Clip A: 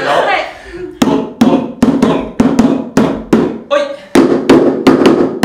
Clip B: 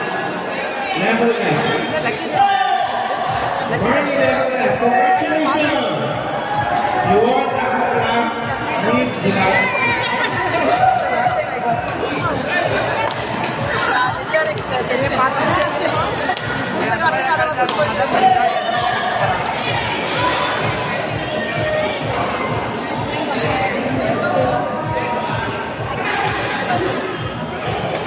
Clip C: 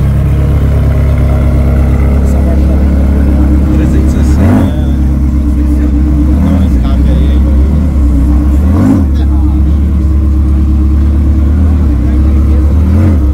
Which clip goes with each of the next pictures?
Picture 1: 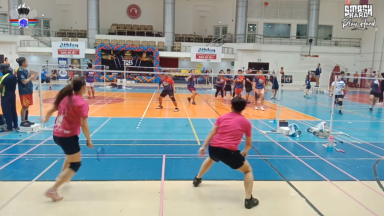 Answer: B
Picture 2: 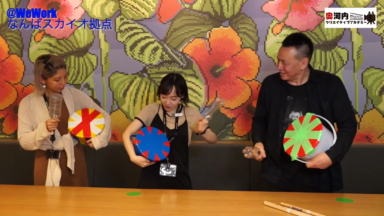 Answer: A